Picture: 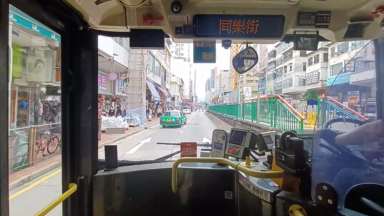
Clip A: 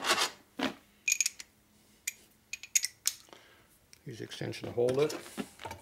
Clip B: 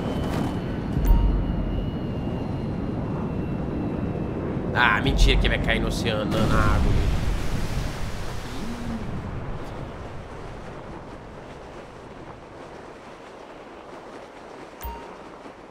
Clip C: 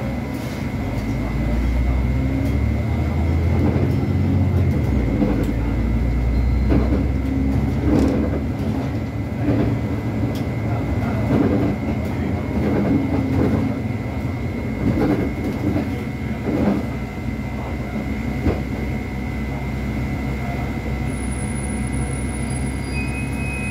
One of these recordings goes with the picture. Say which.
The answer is C